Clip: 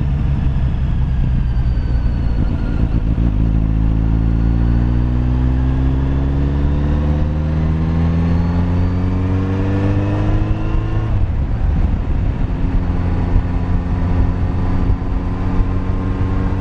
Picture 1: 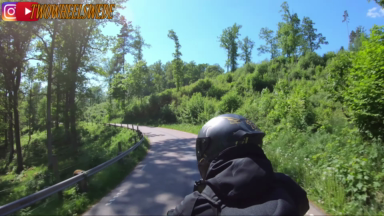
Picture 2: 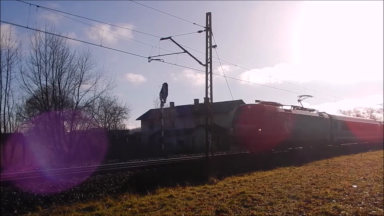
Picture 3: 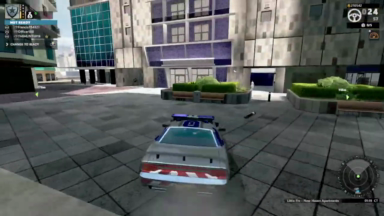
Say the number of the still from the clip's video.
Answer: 1